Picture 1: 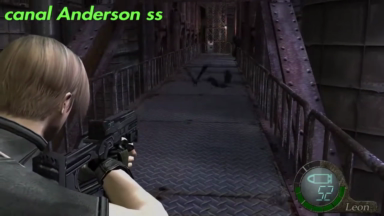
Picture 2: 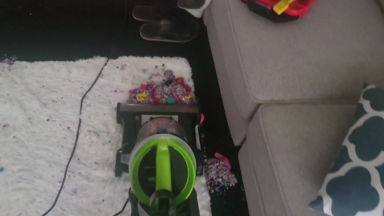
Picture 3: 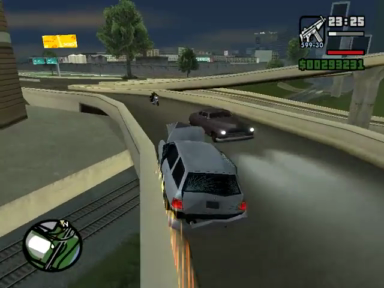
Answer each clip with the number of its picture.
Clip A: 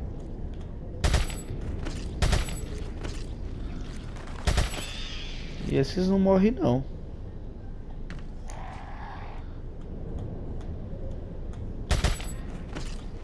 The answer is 1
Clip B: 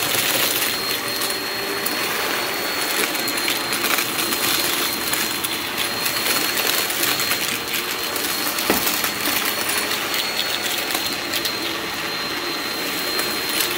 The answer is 2